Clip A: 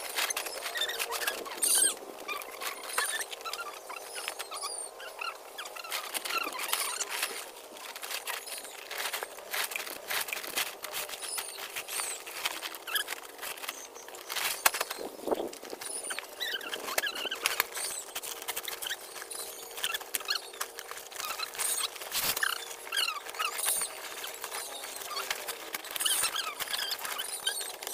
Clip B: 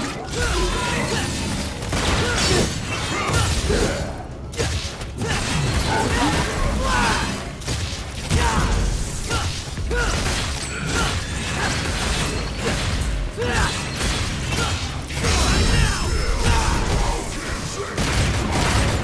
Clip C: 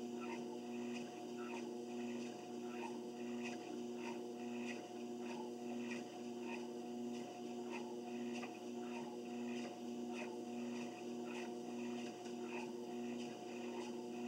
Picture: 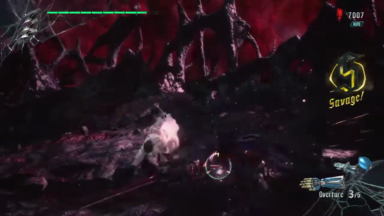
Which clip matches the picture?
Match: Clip B